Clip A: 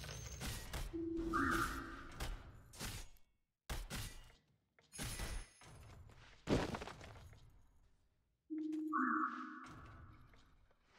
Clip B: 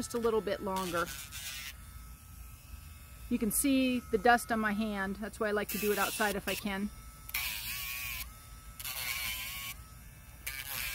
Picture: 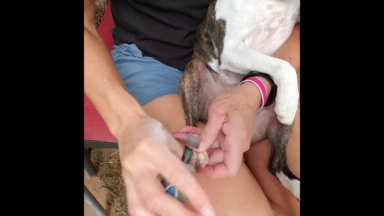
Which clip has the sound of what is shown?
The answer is B